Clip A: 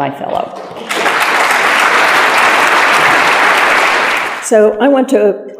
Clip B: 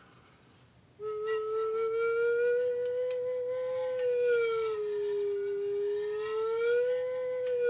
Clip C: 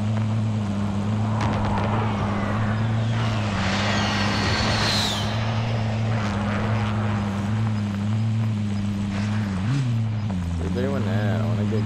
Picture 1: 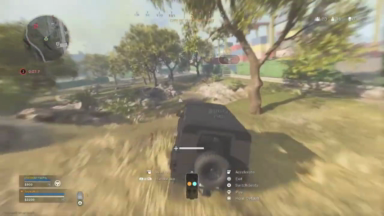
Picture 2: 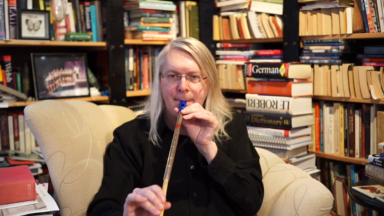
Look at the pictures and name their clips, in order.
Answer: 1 C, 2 B